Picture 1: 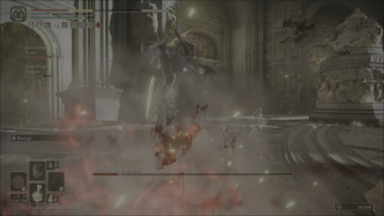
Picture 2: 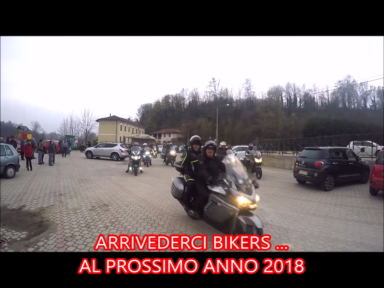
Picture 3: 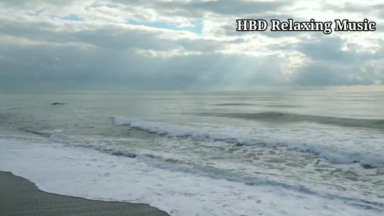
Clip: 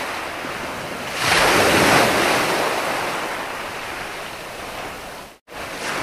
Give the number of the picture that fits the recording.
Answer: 3